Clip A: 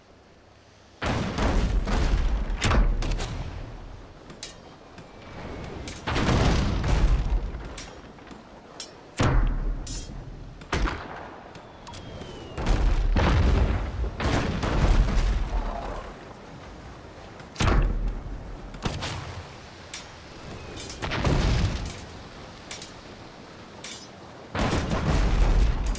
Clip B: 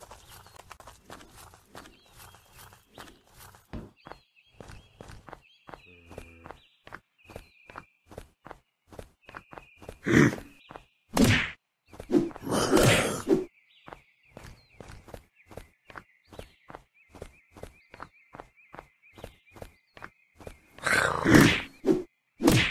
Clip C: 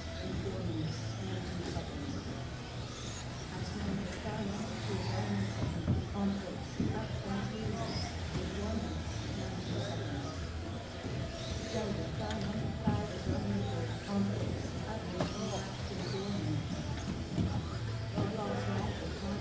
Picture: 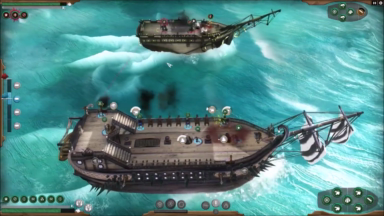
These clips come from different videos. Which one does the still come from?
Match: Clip A